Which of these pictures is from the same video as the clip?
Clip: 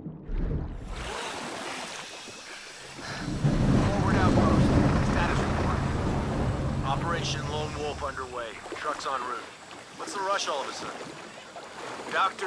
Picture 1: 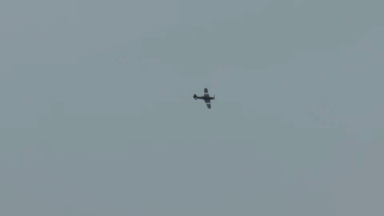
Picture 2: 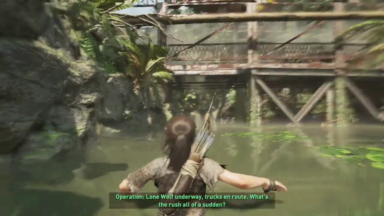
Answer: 2